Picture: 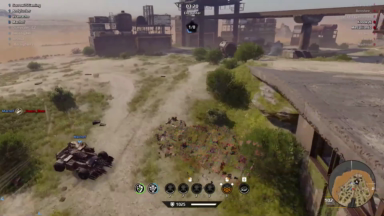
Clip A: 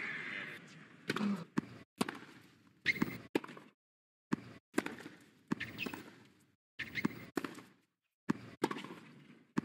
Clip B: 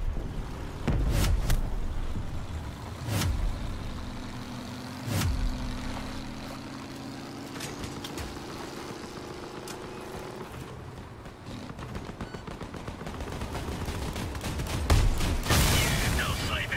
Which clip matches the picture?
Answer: B